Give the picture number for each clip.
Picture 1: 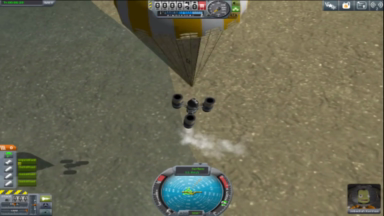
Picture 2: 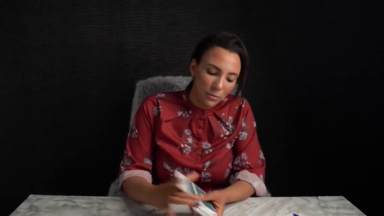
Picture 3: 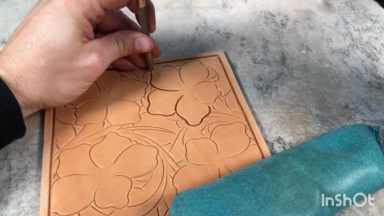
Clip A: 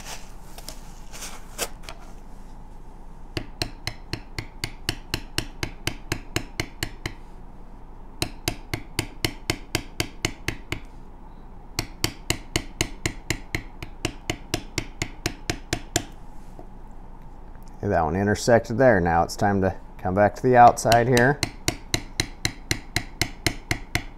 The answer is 3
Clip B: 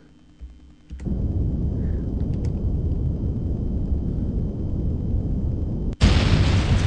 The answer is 1